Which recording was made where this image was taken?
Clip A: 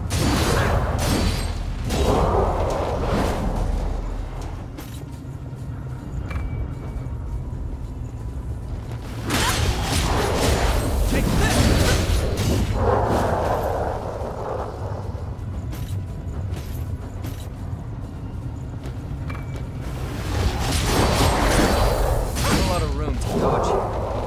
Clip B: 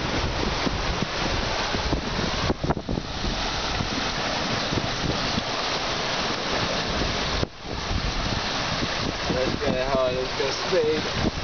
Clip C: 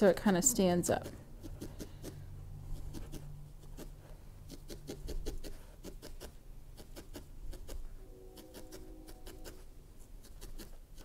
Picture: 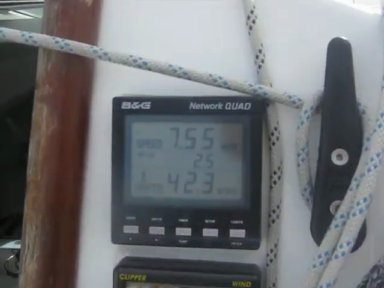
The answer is B